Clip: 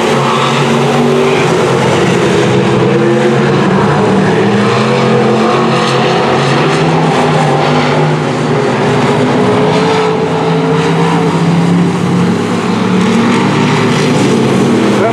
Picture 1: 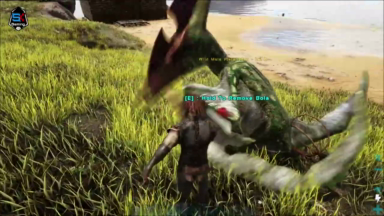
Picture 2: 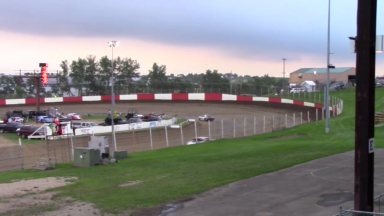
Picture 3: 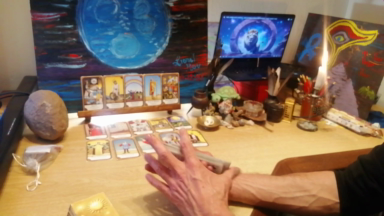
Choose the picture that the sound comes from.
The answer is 2